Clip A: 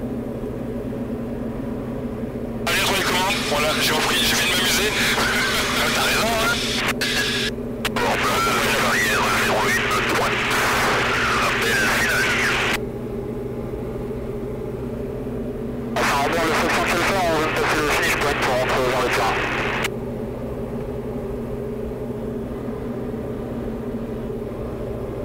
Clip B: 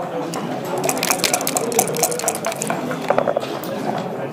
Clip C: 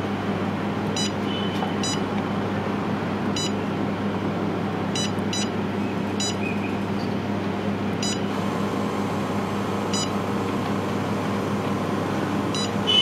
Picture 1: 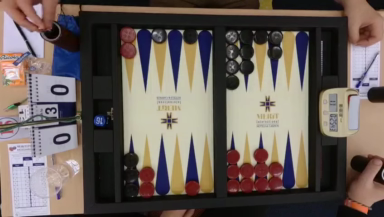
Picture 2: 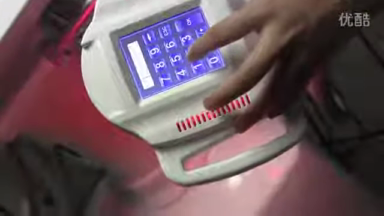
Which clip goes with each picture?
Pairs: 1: B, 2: C